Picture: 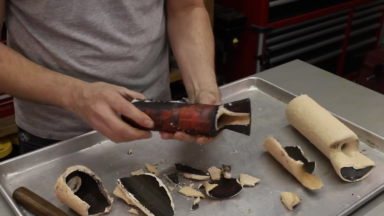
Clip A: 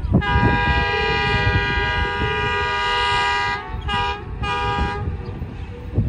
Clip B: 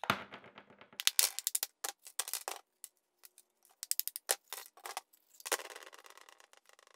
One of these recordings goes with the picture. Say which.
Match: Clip B